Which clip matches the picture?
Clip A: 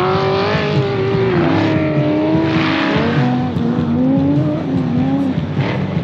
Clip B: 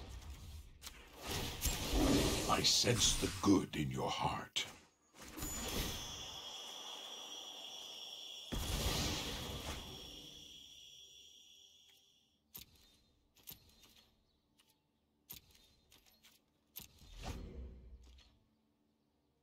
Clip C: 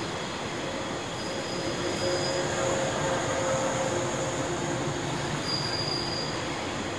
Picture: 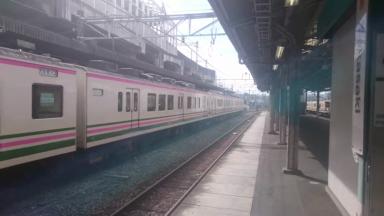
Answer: C